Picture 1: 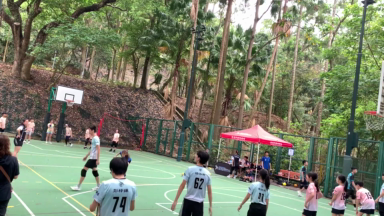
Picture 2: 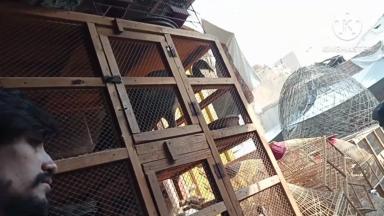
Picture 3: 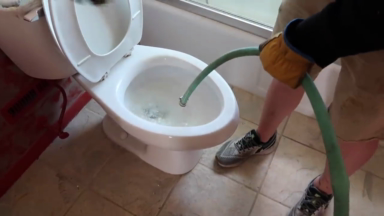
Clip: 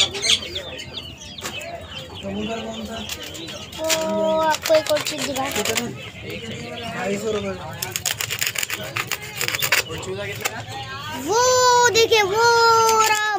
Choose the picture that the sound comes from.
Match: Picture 2